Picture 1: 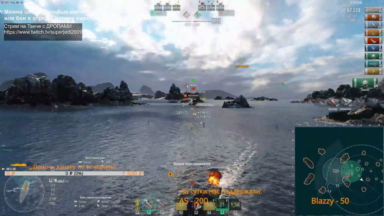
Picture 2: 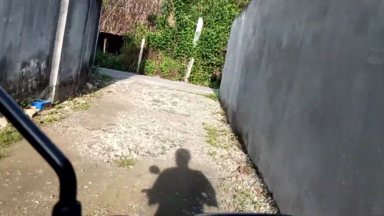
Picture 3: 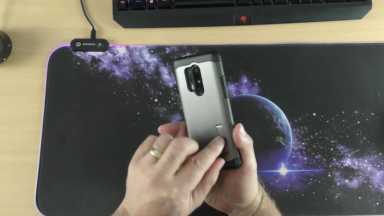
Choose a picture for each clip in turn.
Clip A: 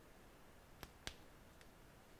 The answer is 3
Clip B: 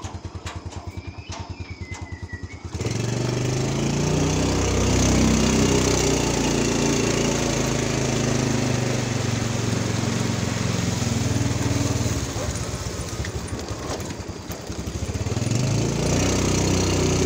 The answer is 2